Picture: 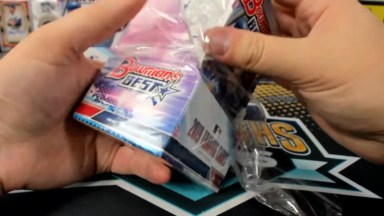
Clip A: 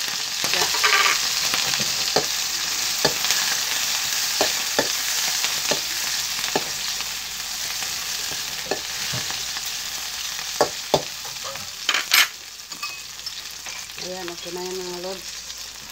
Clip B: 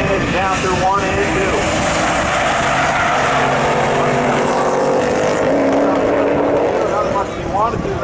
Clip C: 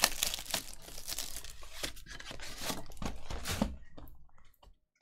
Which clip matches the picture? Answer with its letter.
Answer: C